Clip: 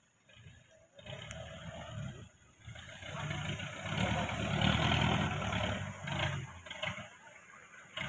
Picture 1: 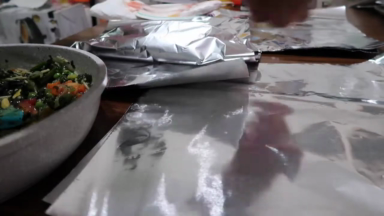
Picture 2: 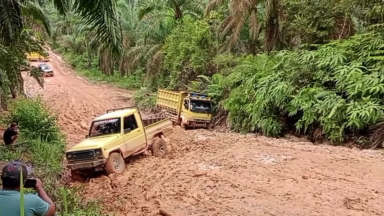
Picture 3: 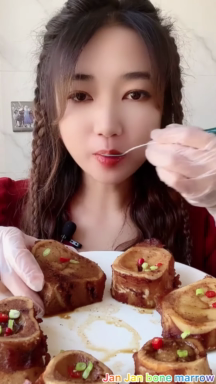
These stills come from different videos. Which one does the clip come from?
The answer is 2